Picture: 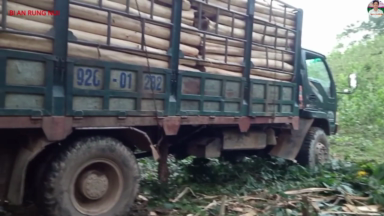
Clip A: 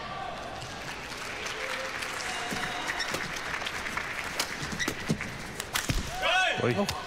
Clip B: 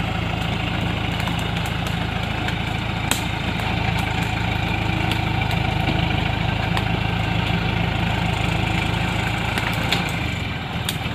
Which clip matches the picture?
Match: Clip B